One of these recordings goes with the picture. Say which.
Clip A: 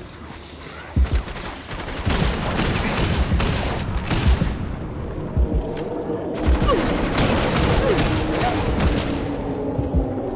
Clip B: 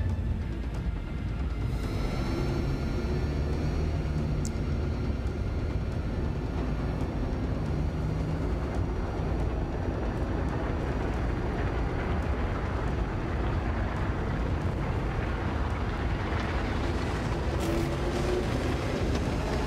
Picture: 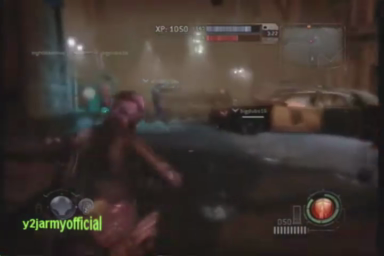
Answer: A